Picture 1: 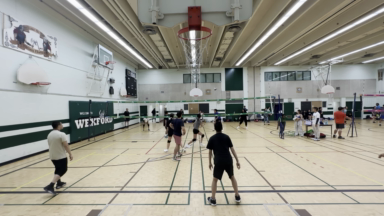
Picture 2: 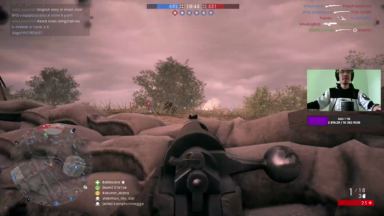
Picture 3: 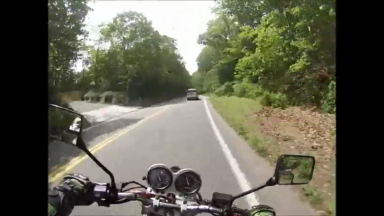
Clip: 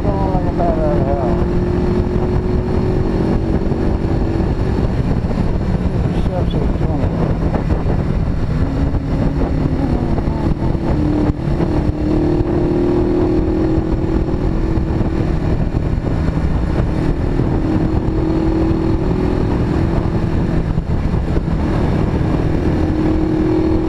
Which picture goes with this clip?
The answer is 3